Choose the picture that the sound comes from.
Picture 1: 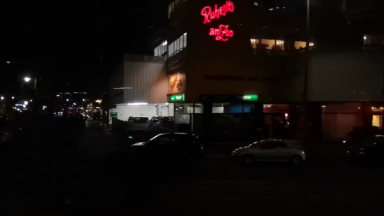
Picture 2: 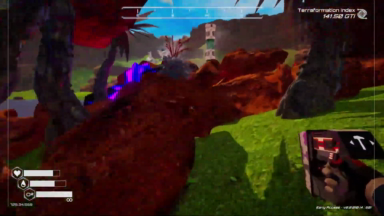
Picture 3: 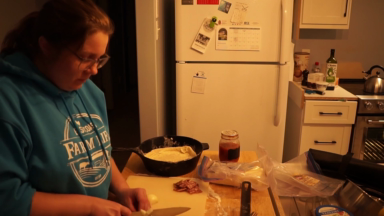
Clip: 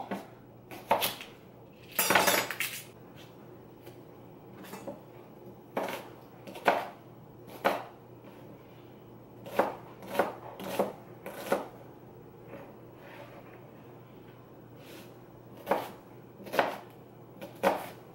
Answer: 3